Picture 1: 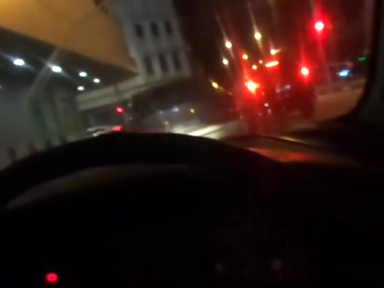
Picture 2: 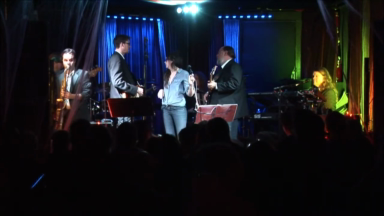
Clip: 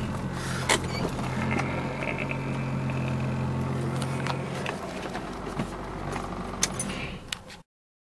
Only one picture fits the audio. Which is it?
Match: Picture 1